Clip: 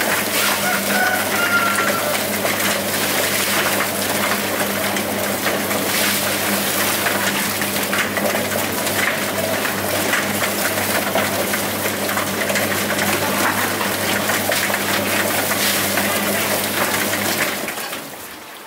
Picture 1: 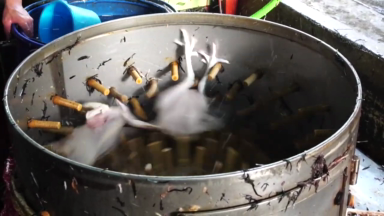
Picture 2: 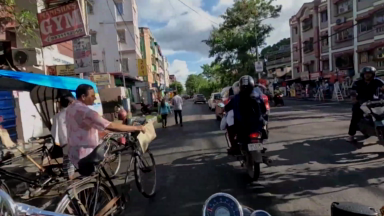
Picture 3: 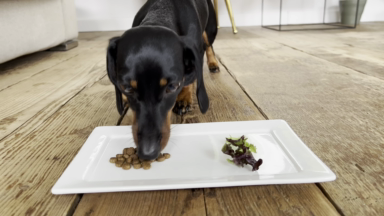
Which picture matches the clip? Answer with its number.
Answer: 1